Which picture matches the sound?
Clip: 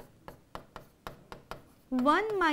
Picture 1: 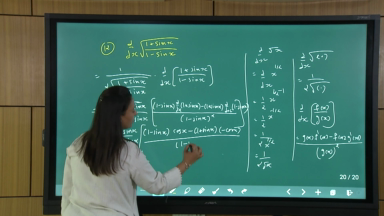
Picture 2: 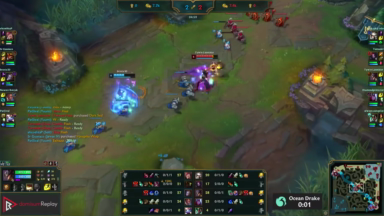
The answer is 1